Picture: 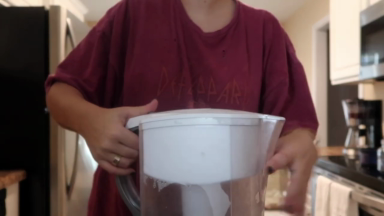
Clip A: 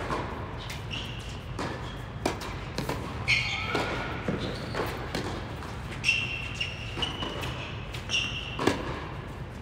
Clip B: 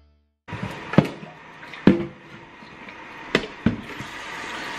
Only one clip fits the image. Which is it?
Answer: B